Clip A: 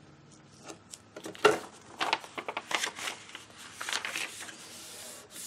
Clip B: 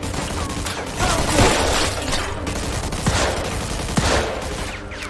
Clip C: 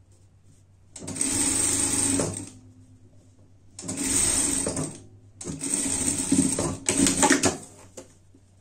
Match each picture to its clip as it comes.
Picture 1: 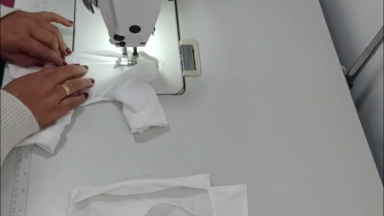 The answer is C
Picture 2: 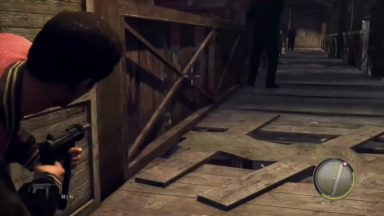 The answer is B